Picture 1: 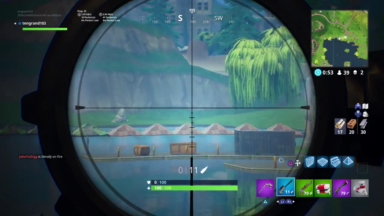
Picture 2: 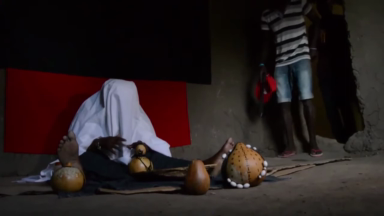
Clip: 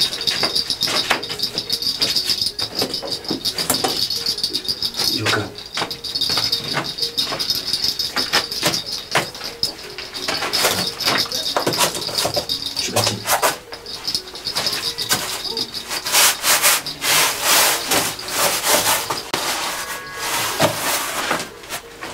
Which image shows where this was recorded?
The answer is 2